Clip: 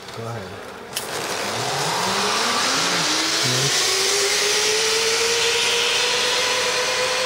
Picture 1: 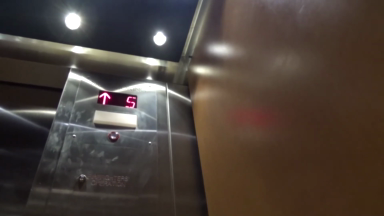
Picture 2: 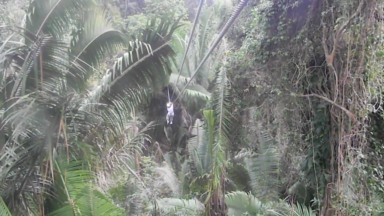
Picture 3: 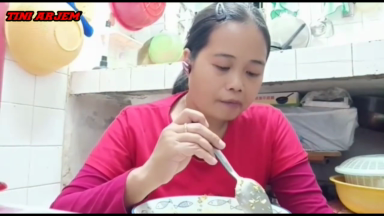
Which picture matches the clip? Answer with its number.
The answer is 2